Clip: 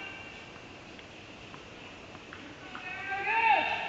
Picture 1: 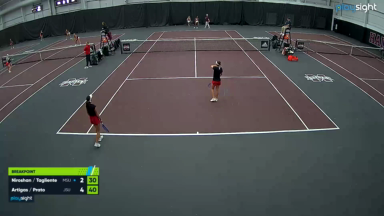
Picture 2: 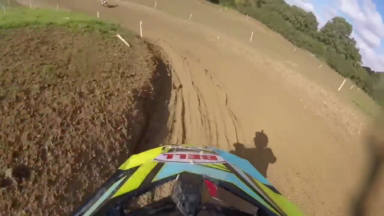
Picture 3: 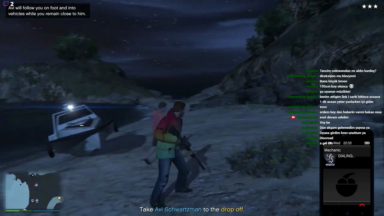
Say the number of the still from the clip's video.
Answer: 1